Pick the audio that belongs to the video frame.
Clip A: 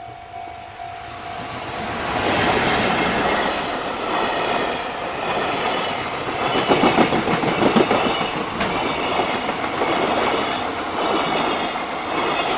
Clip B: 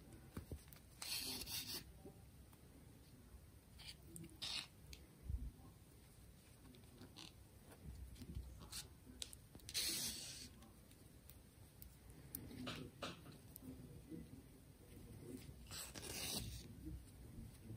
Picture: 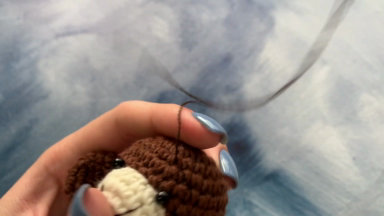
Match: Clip B